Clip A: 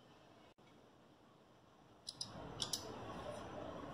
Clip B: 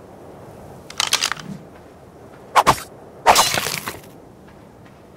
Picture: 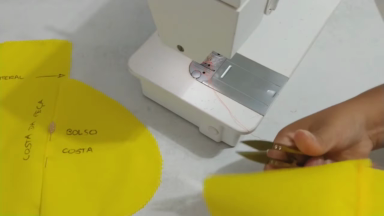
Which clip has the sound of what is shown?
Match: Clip A